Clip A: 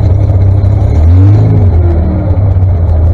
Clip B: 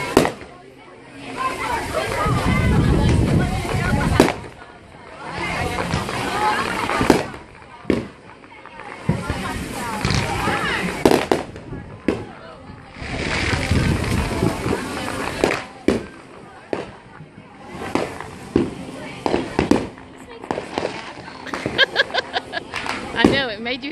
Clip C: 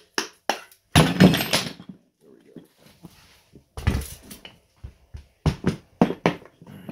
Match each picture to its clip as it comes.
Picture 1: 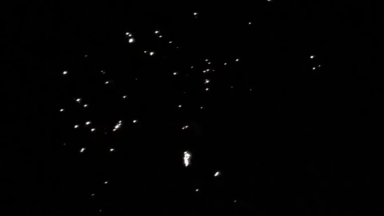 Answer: B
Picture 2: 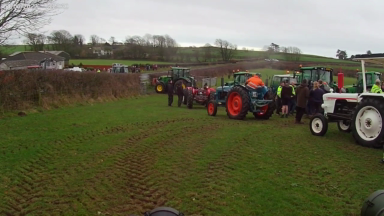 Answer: A